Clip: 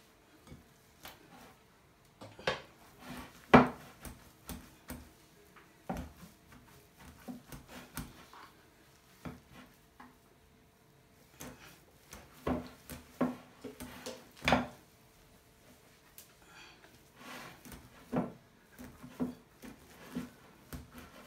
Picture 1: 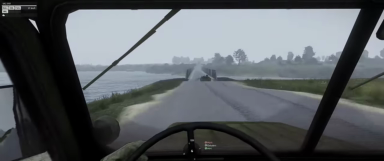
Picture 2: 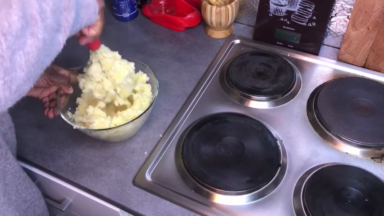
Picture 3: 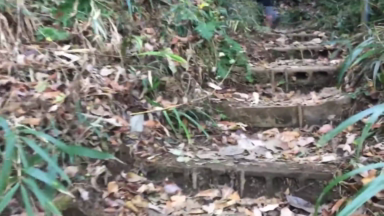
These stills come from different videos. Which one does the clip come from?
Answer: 2